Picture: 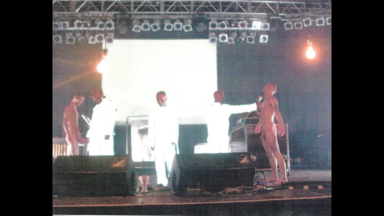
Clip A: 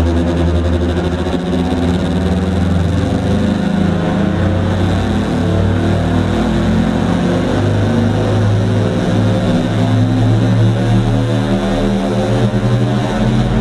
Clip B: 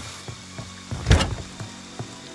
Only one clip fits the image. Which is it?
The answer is A